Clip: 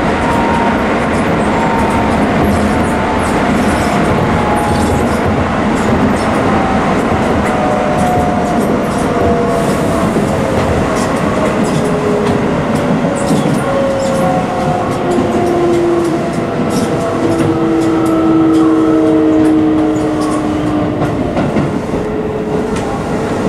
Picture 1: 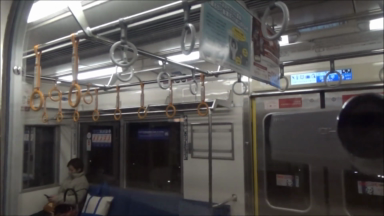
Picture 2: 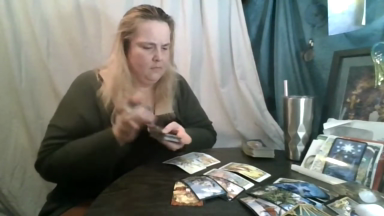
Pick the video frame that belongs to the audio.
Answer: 1